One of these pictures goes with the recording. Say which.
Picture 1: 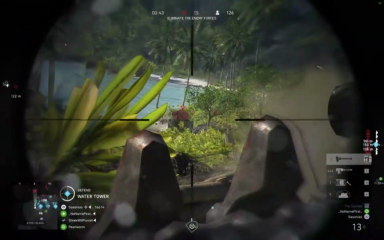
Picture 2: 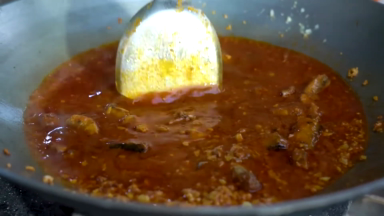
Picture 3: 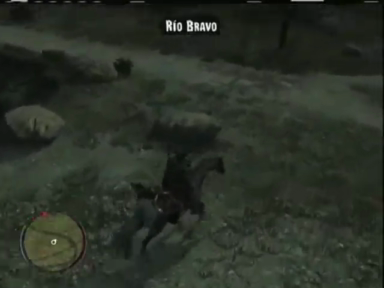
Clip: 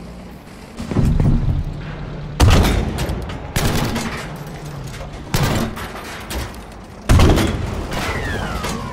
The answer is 1